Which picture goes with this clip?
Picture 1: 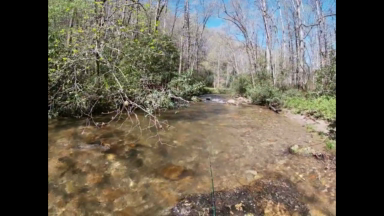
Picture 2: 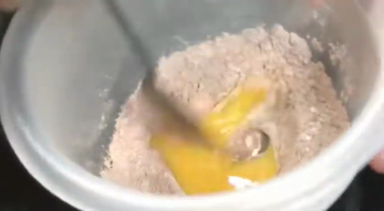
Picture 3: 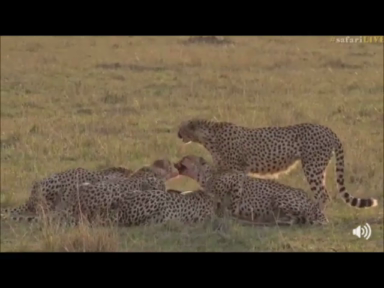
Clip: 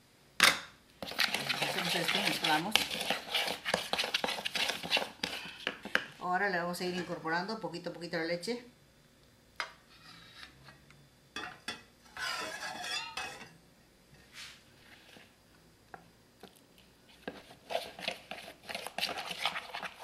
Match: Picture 2